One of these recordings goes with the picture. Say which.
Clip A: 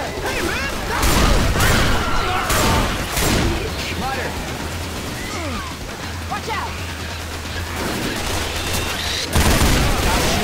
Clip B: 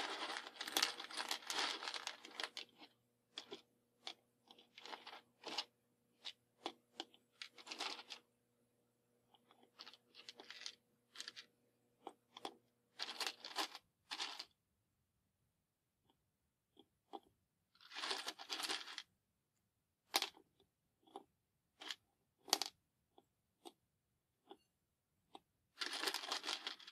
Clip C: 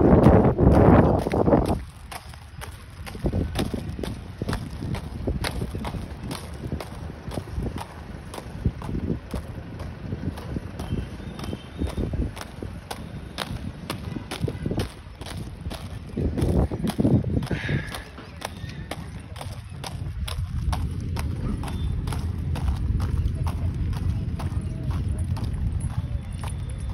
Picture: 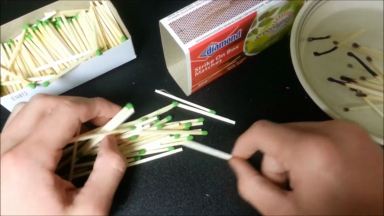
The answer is B